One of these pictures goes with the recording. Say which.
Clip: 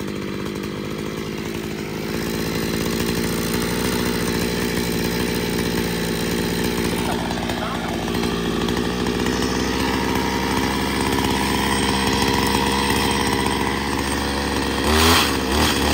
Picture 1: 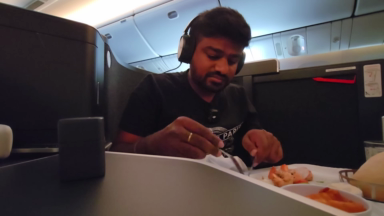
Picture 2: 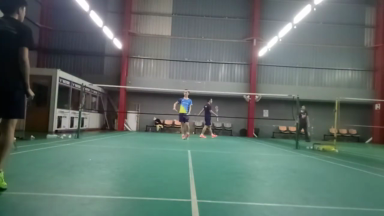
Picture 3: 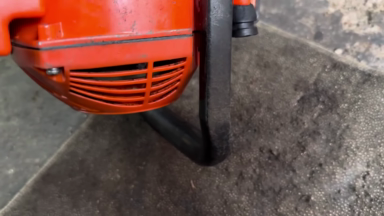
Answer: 3